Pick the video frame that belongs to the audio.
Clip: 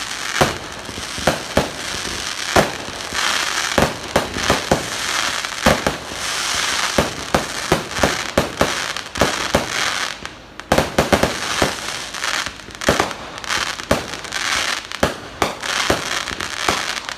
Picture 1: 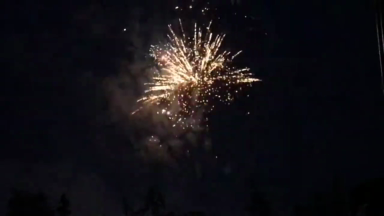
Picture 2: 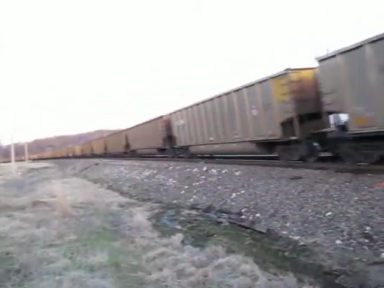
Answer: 1